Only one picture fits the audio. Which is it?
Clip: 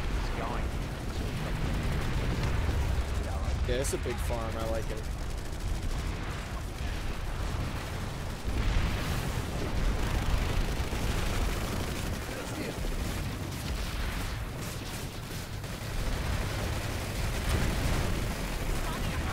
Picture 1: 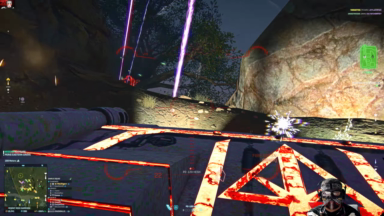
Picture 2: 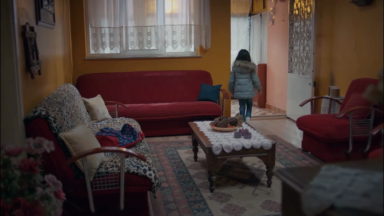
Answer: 1